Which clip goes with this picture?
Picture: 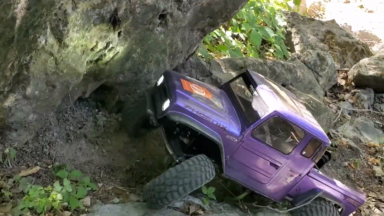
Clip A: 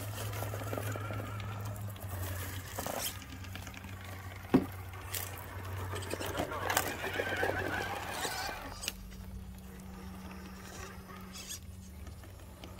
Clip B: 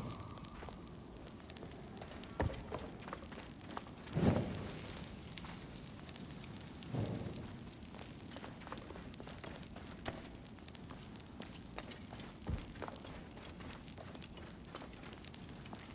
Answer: A